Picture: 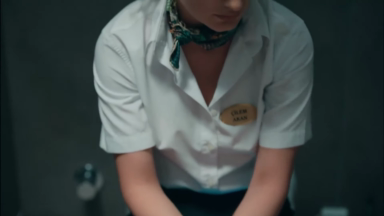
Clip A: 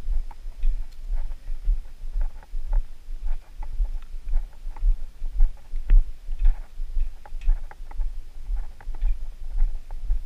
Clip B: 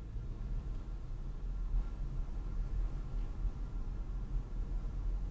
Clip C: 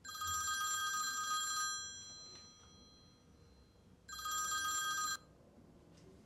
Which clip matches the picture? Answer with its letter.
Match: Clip C